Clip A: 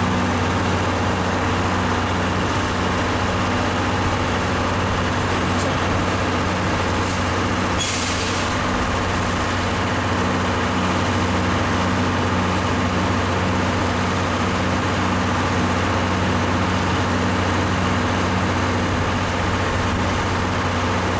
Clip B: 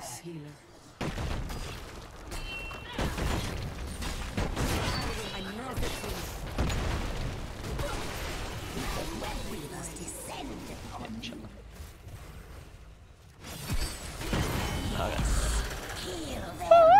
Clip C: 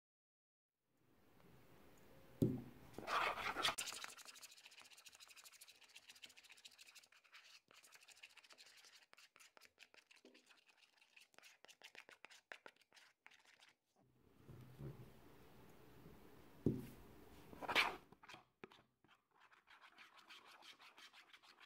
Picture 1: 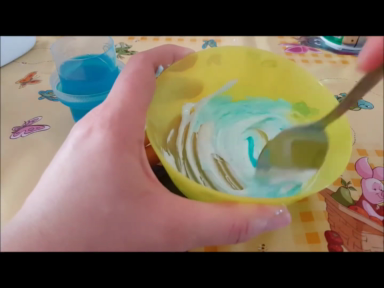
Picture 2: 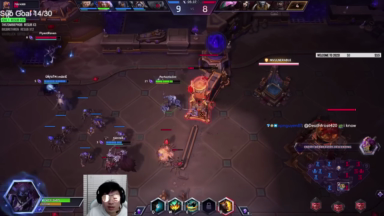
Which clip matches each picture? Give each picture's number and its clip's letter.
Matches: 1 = C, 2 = B